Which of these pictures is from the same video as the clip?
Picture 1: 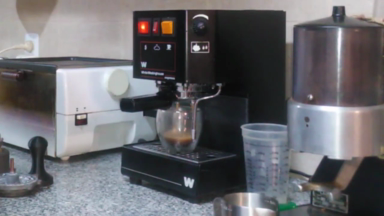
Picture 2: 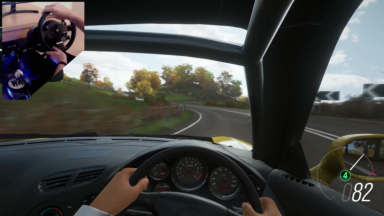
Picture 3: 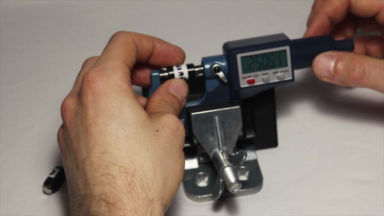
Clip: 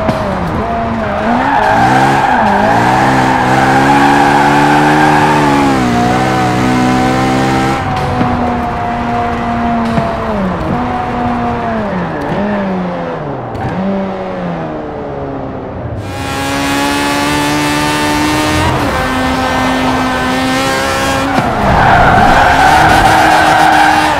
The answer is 2